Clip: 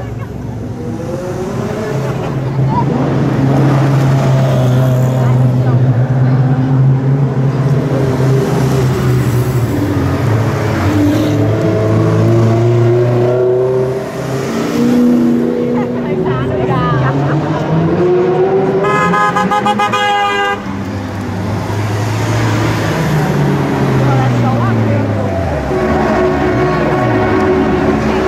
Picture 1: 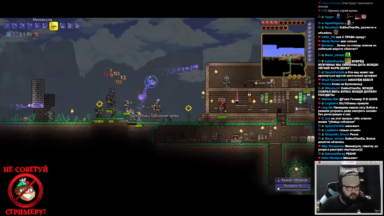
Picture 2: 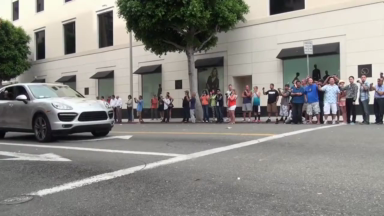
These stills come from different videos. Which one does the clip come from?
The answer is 2